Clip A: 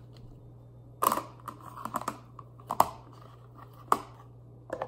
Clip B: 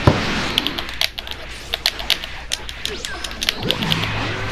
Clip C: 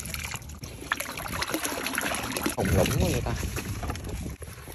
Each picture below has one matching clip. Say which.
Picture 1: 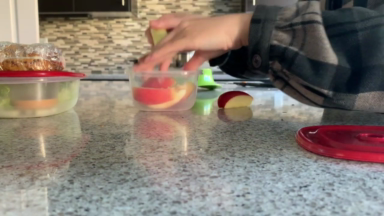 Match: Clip A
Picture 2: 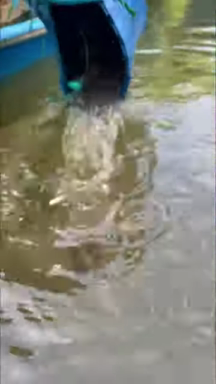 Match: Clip C